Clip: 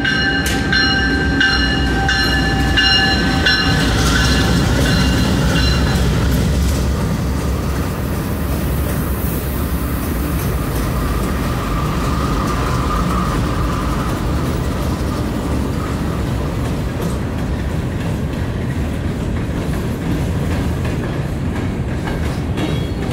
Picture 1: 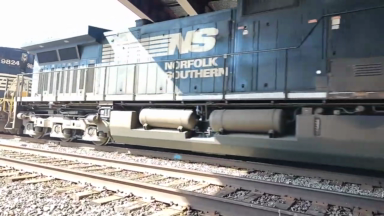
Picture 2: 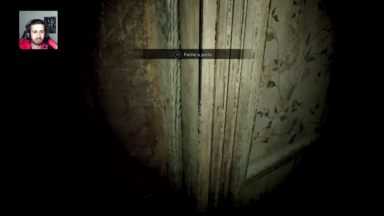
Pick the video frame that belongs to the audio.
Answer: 1